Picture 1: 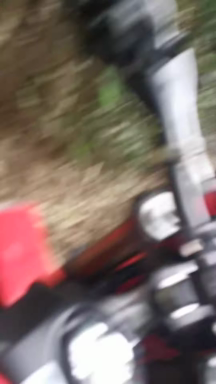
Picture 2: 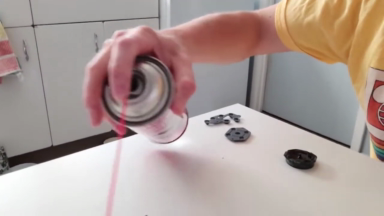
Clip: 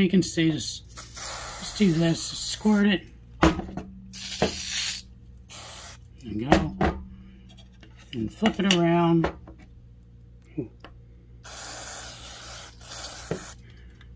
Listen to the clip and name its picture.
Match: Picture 2